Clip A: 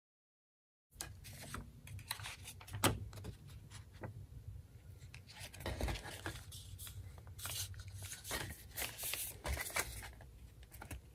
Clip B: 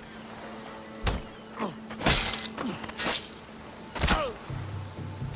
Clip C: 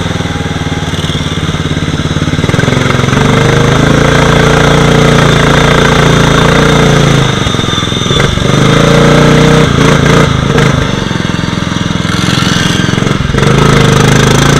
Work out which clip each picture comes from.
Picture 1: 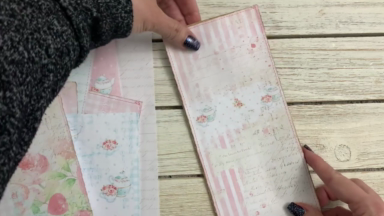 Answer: A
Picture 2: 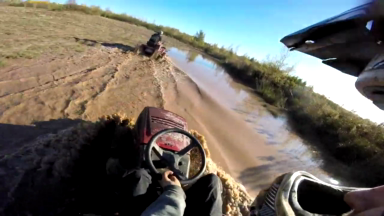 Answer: C